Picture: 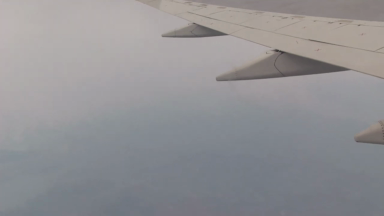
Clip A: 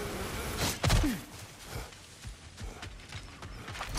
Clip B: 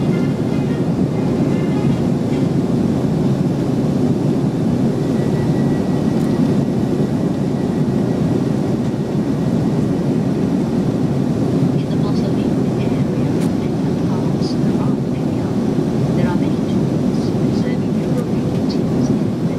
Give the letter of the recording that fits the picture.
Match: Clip B